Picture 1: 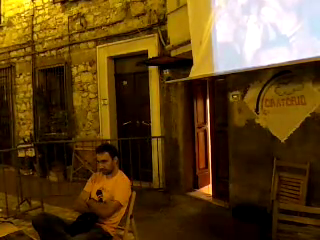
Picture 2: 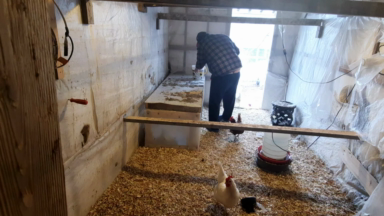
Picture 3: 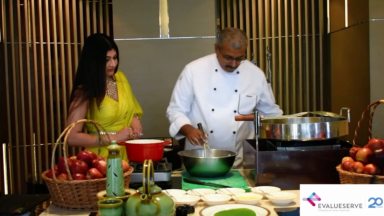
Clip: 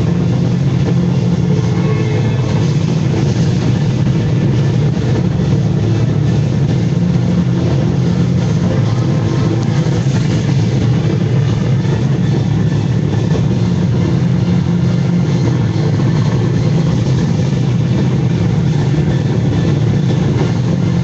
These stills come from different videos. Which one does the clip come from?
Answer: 1